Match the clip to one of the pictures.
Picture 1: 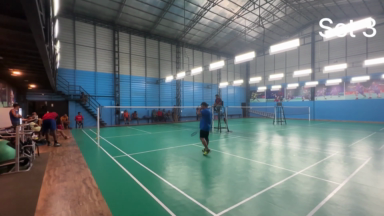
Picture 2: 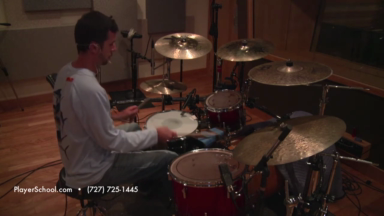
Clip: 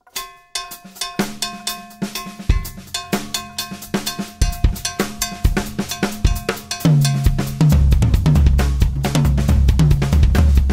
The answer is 2